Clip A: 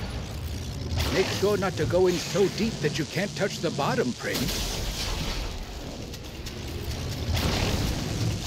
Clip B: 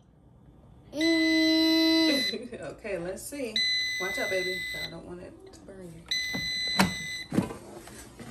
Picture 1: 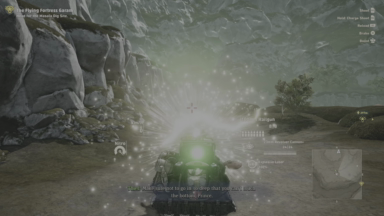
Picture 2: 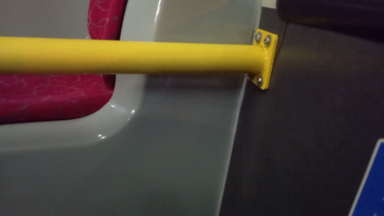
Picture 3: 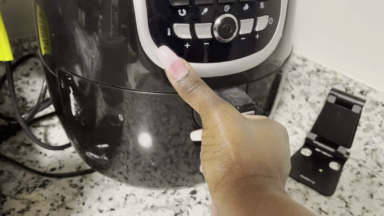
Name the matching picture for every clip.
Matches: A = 1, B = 3